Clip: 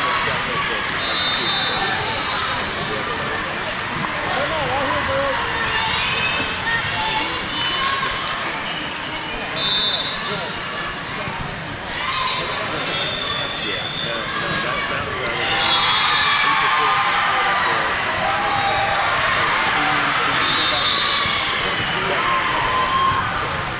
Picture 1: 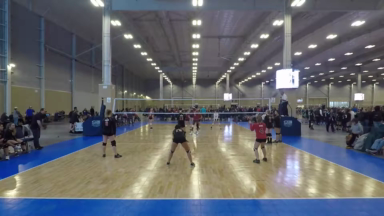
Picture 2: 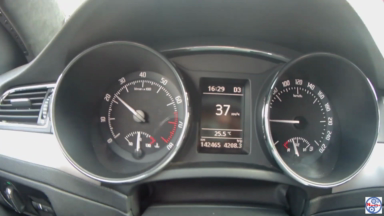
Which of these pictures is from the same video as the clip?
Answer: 1